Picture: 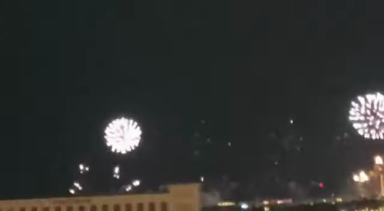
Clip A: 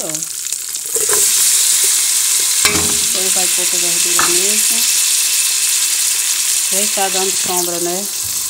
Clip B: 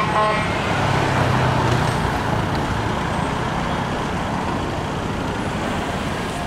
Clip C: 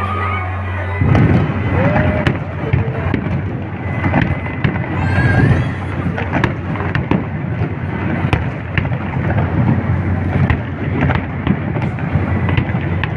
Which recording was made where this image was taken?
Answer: C